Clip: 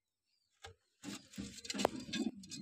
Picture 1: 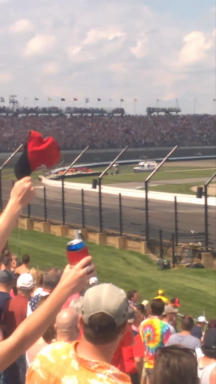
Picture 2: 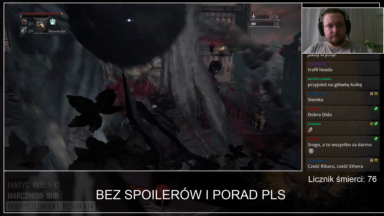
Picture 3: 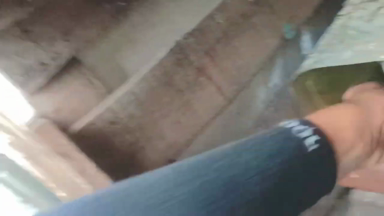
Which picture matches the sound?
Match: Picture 3